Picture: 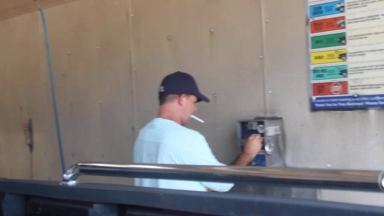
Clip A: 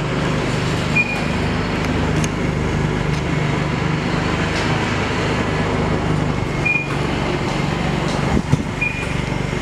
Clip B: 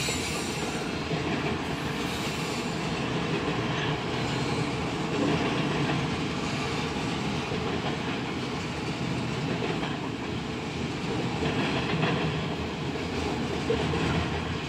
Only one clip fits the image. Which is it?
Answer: A